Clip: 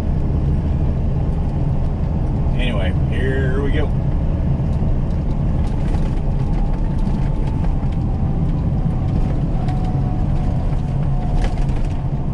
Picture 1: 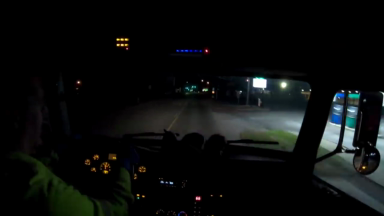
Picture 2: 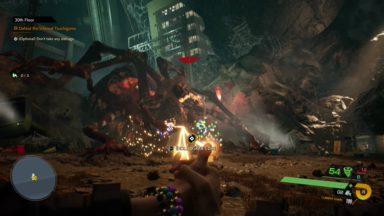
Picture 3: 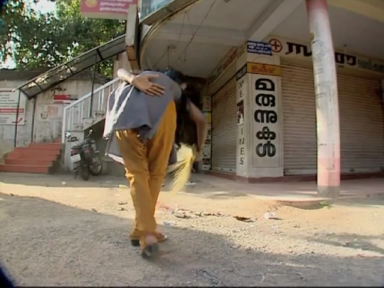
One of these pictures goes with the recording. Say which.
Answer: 1